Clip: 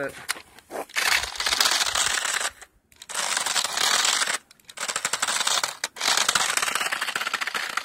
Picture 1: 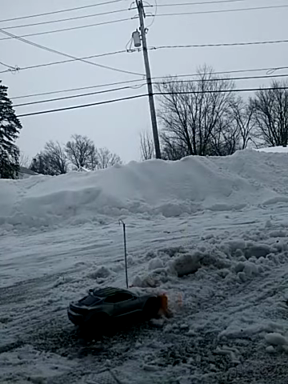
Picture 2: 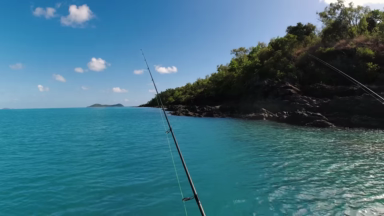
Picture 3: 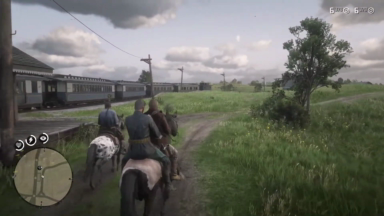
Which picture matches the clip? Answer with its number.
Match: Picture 1